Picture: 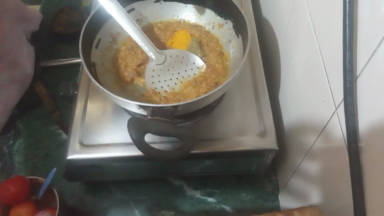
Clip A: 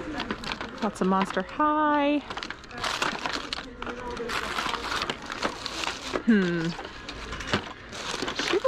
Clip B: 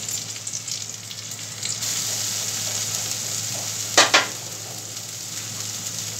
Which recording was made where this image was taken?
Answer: B